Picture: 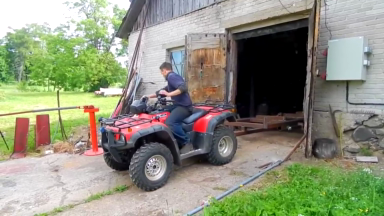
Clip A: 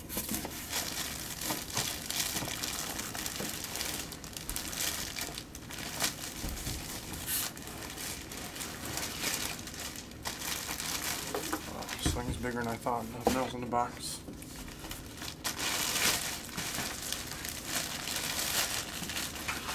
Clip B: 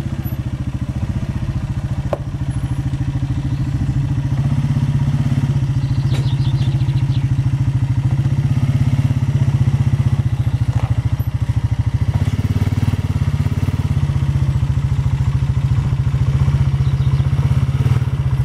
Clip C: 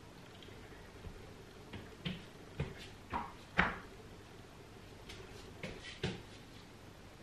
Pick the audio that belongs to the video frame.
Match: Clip B